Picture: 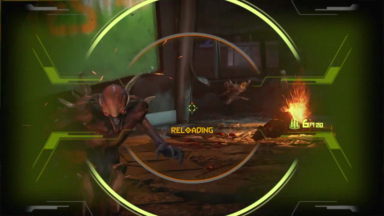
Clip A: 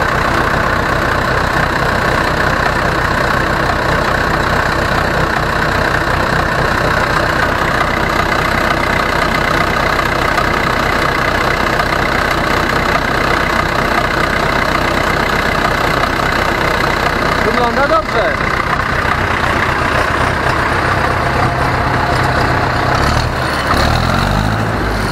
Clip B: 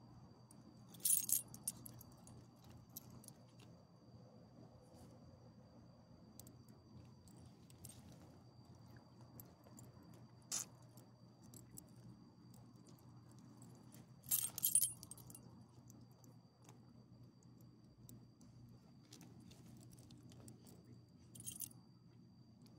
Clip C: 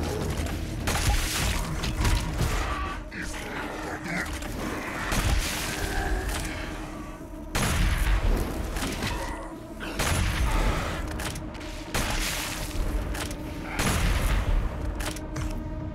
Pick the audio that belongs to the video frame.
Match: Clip C